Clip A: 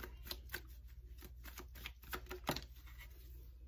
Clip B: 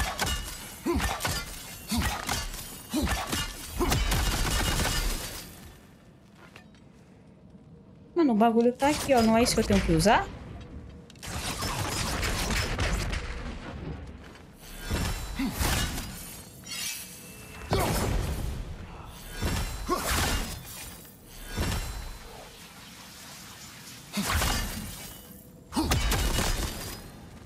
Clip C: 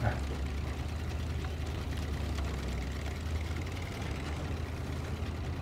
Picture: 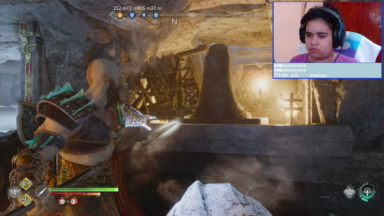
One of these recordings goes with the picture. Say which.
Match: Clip B